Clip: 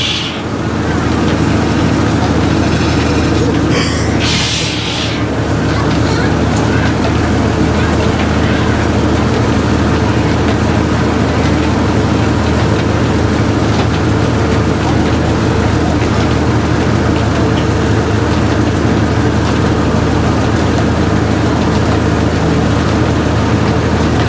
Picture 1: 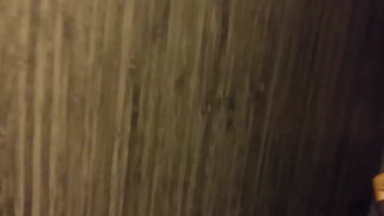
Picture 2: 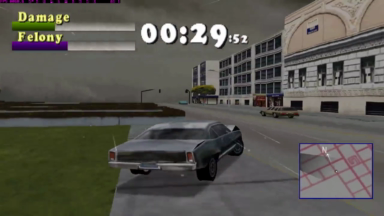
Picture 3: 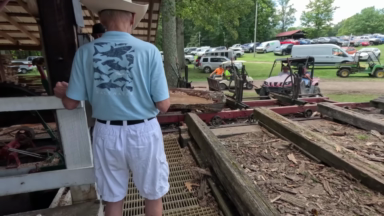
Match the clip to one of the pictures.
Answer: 3